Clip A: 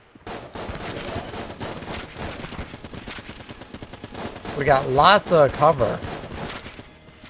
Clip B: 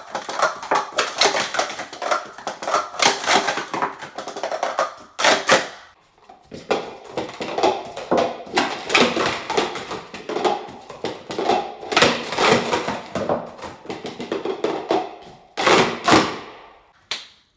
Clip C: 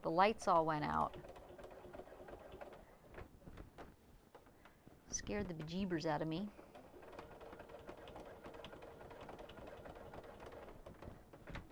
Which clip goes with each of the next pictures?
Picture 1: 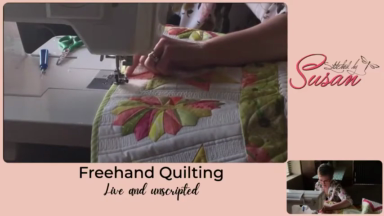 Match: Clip C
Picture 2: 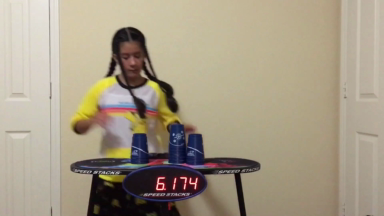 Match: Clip B